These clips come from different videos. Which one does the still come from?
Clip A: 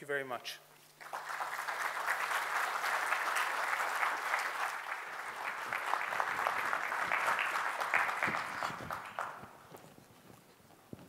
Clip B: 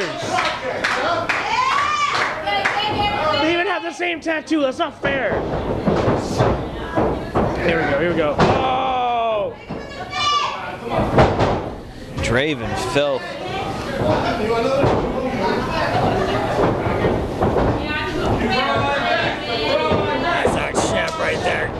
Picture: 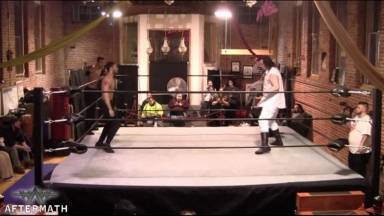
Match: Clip B